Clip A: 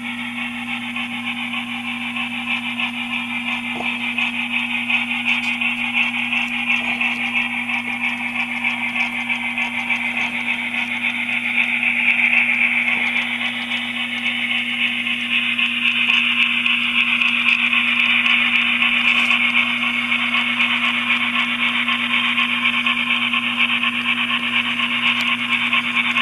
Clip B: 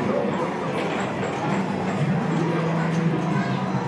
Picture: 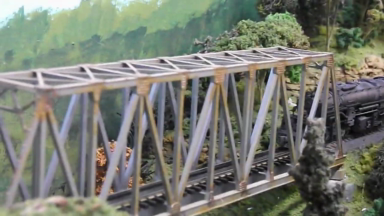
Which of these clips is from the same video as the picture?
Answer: A